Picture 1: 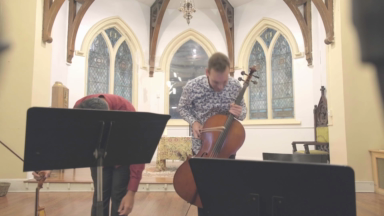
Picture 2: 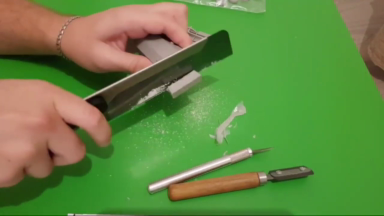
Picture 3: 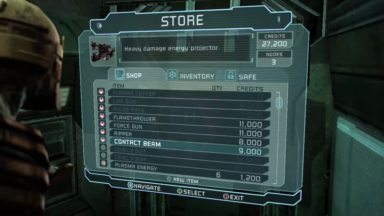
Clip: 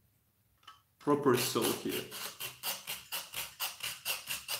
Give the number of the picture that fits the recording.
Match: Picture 2